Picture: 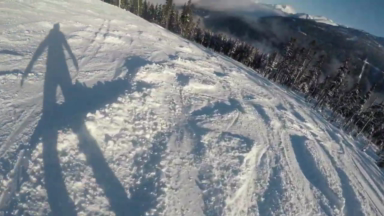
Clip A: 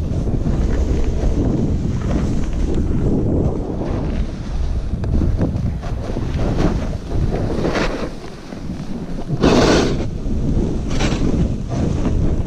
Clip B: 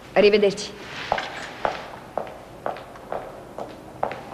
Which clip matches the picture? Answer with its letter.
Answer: A